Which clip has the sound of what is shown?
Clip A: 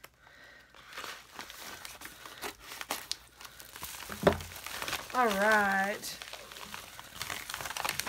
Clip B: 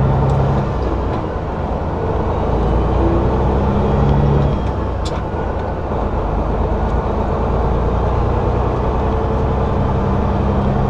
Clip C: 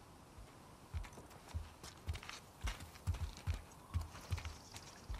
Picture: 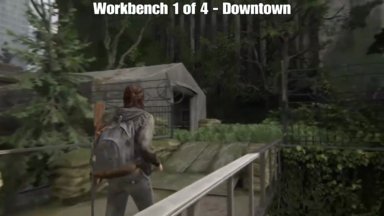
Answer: C